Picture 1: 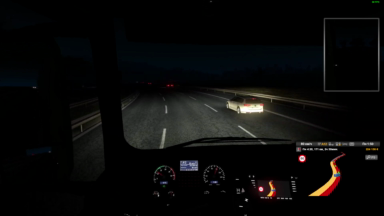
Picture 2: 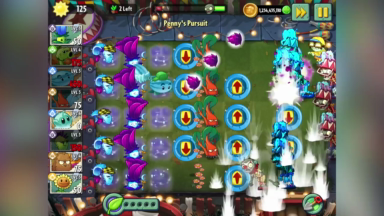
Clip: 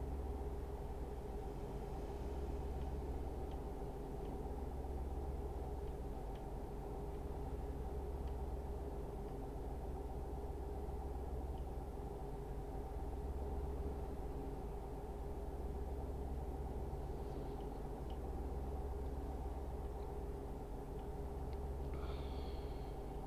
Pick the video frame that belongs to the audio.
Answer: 1